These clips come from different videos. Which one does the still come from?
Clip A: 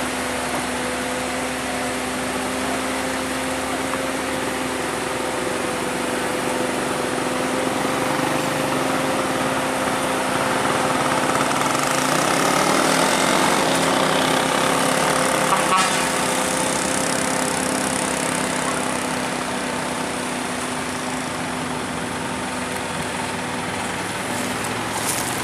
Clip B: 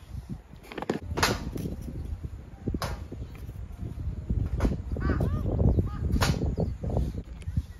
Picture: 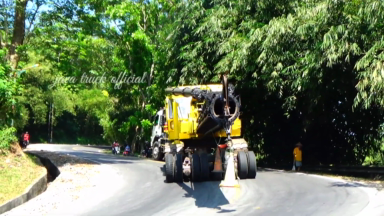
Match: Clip A